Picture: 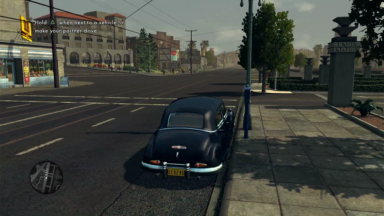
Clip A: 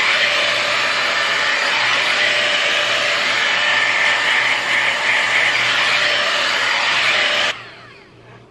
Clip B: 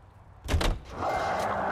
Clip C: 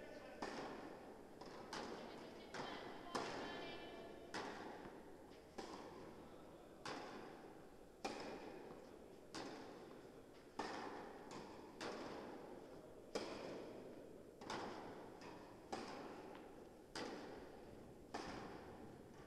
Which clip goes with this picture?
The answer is B